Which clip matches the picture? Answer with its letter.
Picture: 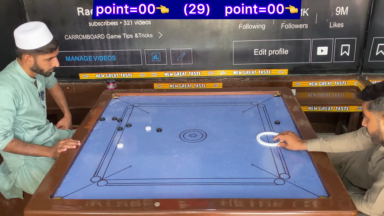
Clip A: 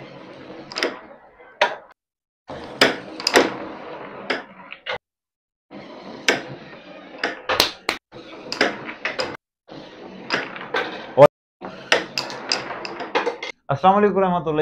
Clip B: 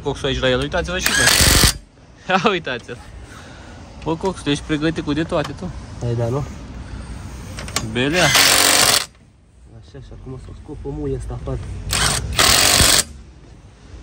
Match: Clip A